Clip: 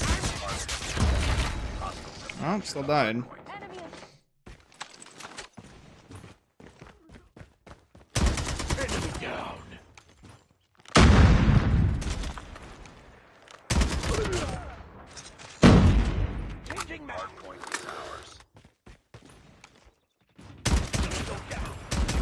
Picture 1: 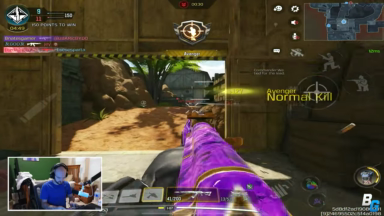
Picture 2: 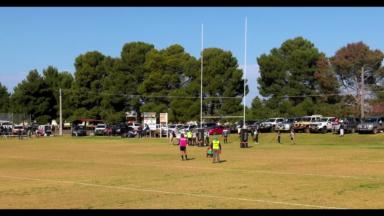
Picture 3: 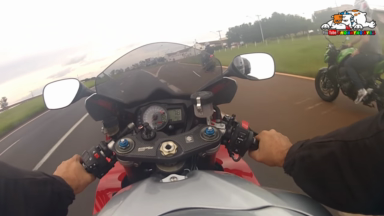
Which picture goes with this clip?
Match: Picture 1